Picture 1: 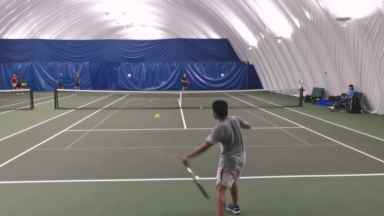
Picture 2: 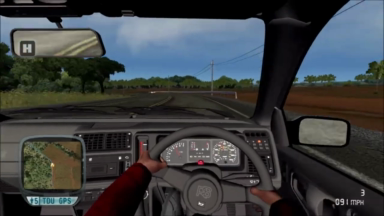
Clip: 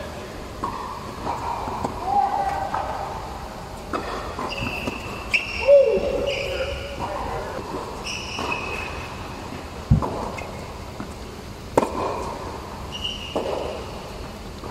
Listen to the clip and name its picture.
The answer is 1